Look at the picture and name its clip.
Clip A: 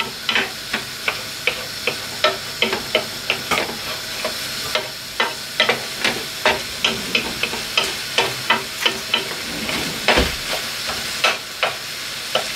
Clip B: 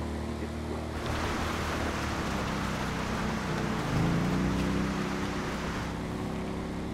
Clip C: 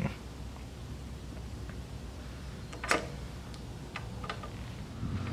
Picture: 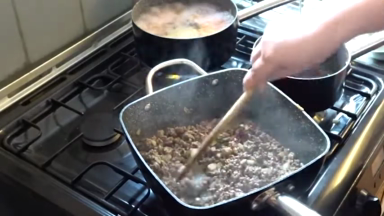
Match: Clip A